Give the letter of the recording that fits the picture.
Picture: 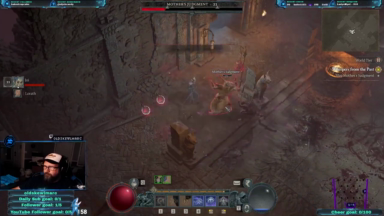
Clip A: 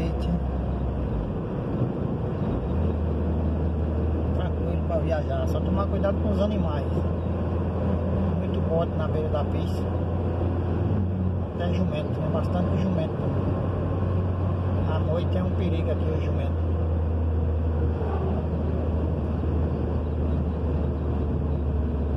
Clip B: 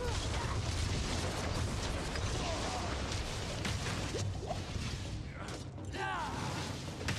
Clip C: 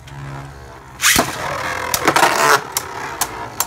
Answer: B